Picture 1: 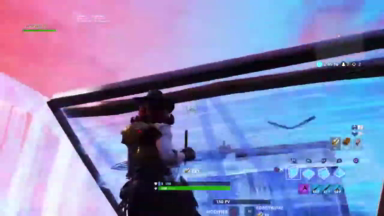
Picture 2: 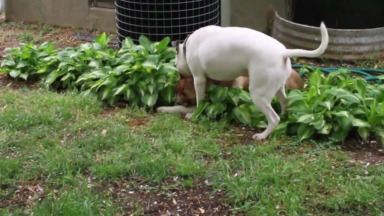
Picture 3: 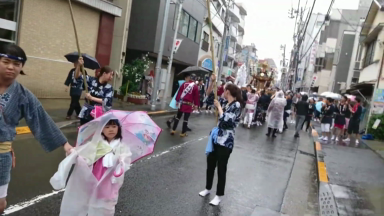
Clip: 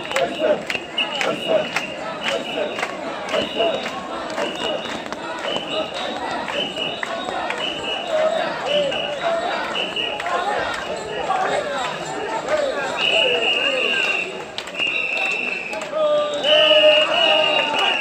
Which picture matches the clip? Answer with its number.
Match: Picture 3